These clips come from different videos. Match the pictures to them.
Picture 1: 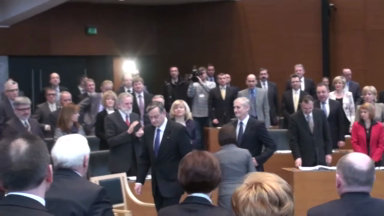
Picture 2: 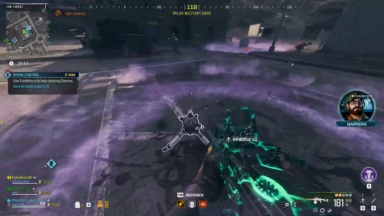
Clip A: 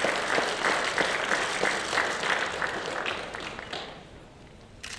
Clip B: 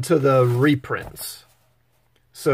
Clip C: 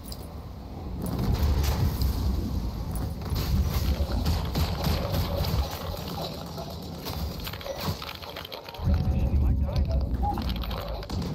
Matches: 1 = A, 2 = C